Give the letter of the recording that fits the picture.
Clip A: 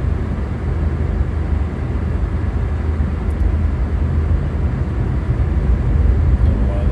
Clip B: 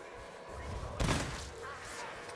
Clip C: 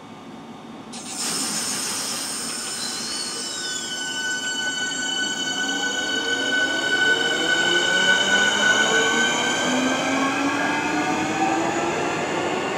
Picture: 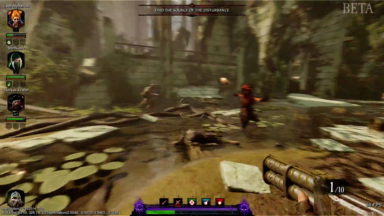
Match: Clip B